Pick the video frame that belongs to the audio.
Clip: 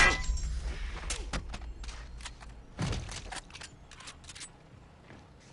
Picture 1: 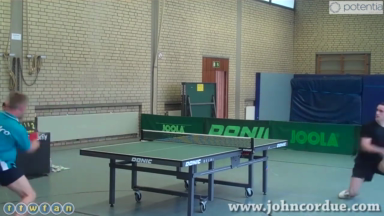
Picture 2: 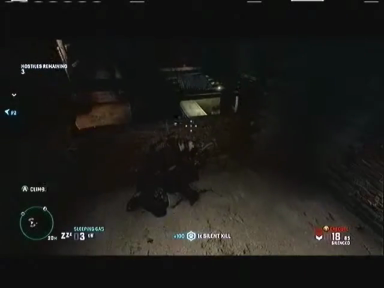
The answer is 2